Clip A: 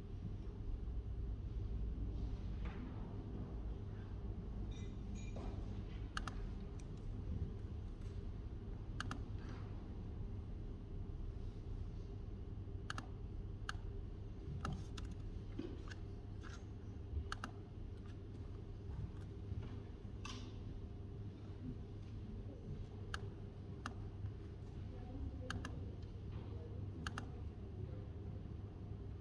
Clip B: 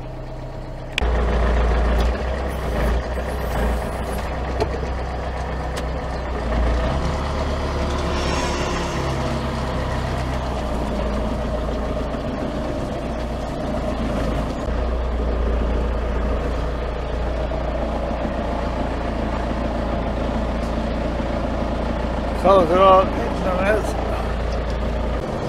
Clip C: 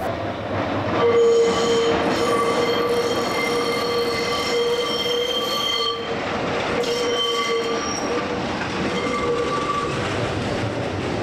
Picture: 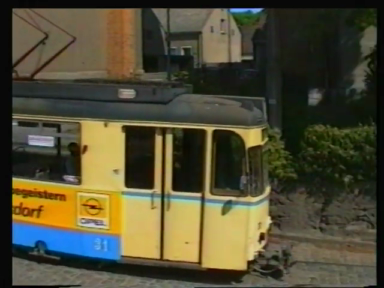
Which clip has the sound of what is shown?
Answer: C